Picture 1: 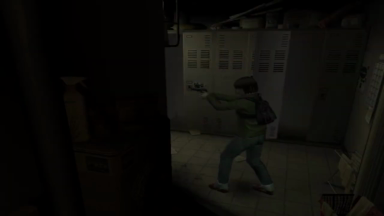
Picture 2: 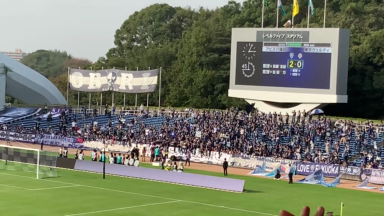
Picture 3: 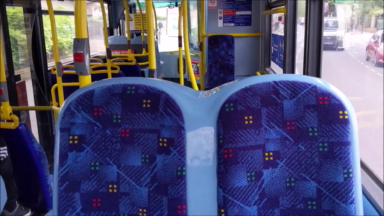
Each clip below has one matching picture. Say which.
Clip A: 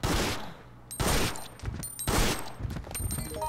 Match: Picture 1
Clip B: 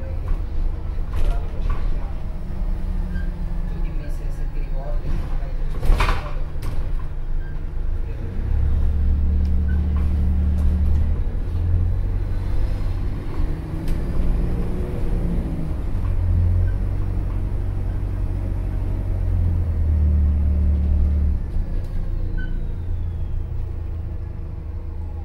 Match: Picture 3